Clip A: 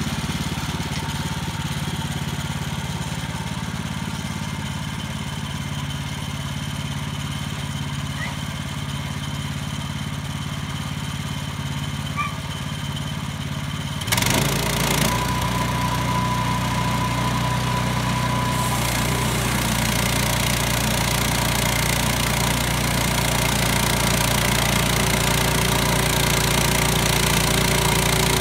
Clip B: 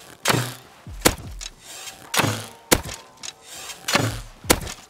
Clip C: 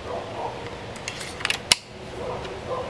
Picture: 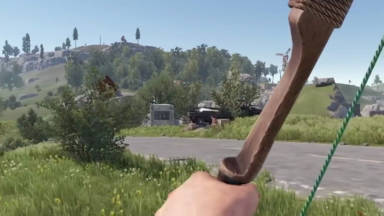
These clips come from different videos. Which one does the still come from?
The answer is B